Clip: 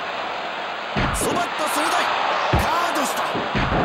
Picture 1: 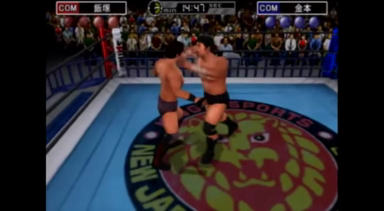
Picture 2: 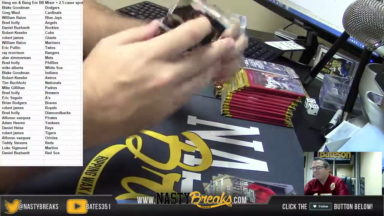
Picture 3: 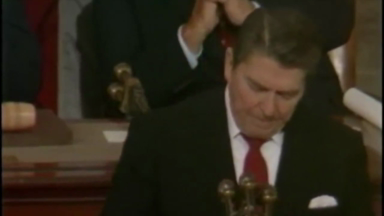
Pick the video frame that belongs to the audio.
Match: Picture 1